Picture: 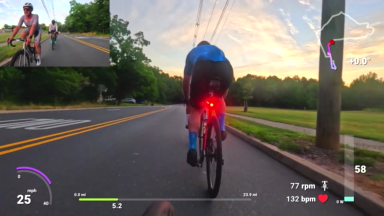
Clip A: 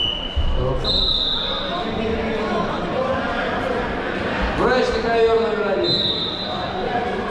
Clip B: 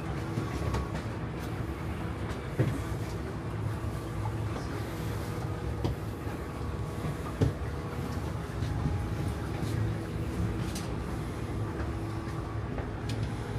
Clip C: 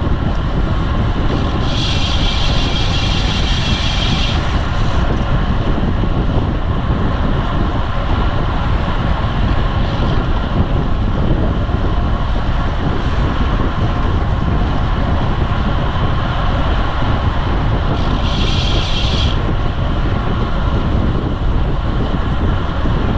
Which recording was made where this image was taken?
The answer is C